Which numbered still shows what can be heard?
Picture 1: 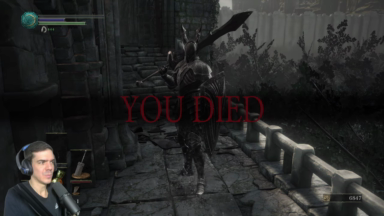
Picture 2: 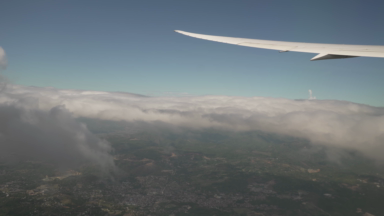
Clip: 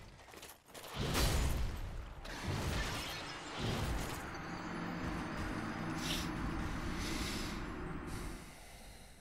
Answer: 1